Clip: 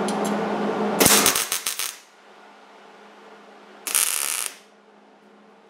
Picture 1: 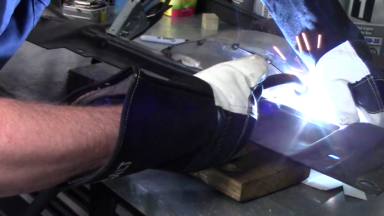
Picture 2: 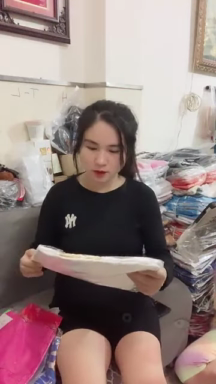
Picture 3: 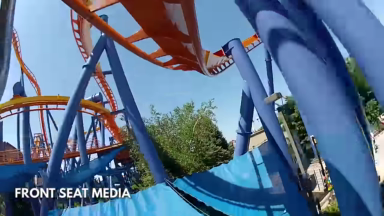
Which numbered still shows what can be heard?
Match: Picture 1